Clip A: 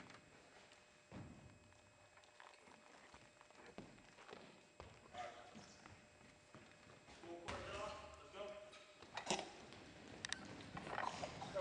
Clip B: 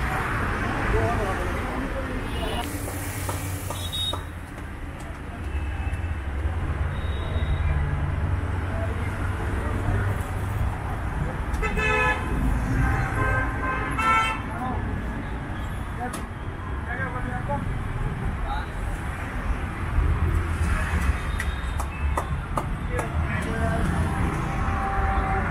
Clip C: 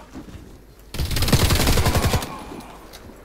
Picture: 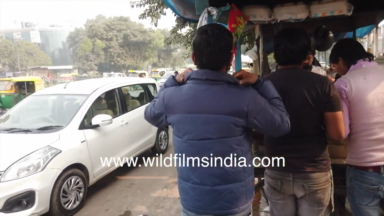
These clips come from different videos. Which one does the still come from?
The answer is B